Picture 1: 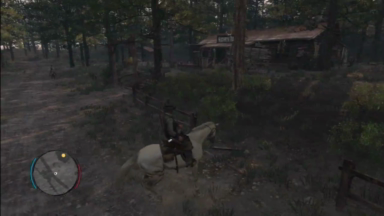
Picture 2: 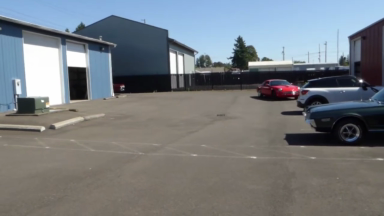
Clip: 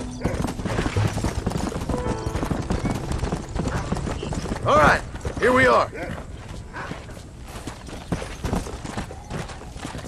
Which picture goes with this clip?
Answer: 1